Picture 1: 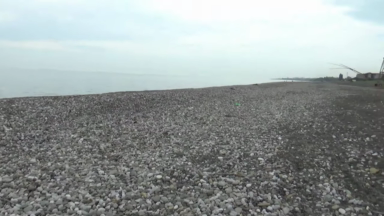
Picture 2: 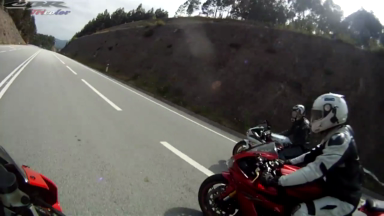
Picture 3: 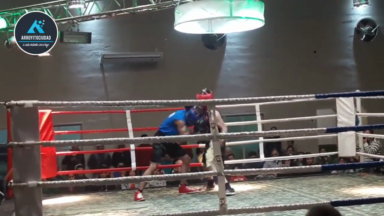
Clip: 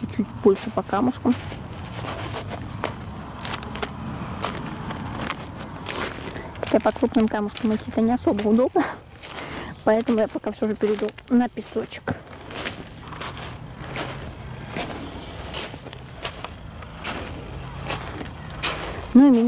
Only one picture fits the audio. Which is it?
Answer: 1